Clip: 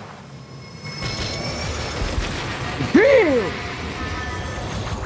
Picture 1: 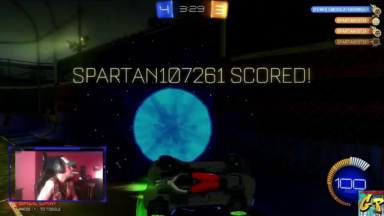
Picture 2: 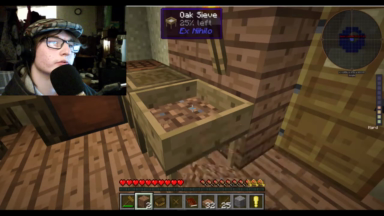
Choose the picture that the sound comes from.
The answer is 1